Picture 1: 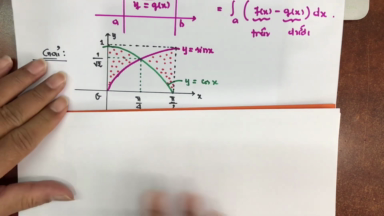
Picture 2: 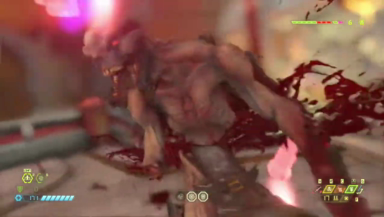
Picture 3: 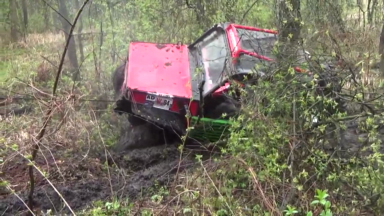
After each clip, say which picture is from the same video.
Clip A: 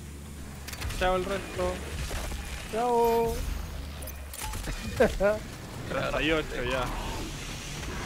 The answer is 2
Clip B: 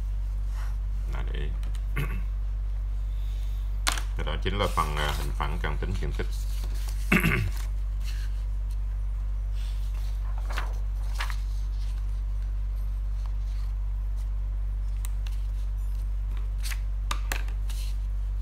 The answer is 1